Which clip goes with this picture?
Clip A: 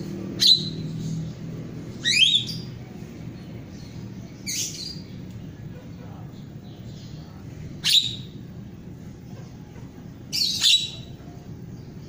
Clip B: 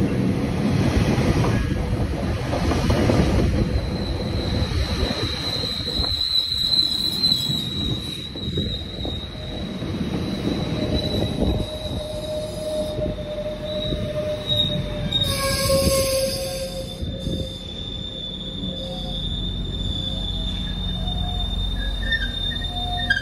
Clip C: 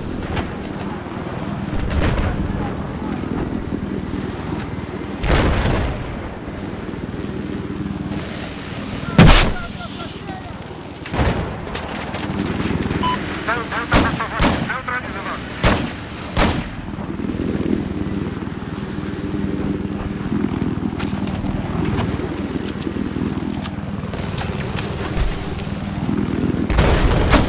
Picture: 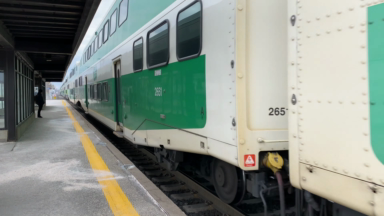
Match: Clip B